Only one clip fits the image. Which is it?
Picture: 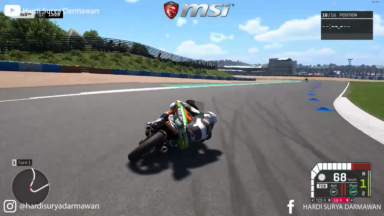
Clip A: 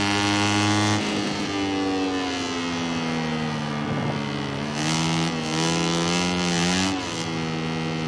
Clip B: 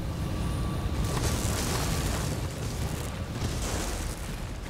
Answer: A